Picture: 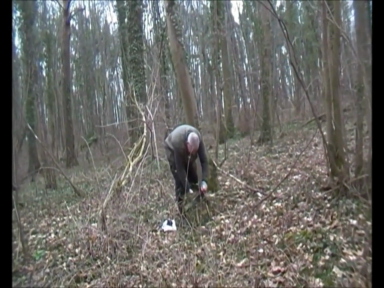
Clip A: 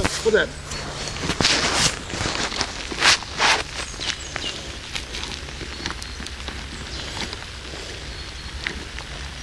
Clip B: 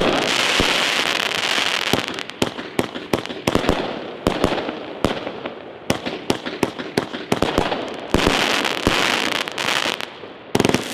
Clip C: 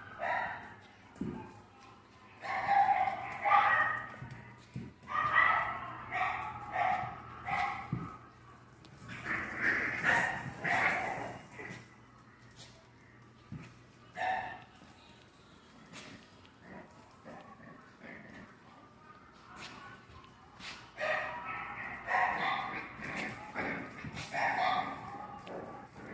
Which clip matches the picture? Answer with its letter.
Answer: A